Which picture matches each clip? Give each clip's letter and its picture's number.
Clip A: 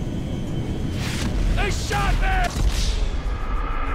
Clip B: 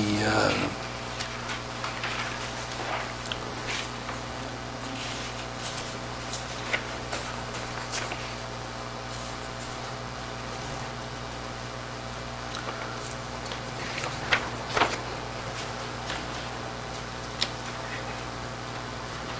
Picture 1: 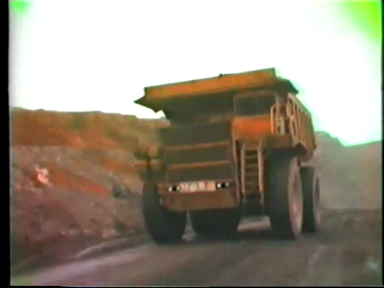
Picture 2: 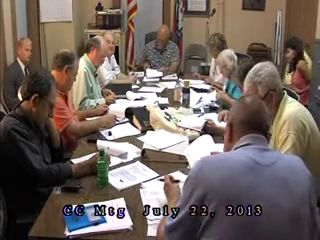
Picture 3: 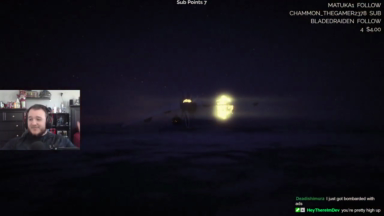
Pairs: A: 3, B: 2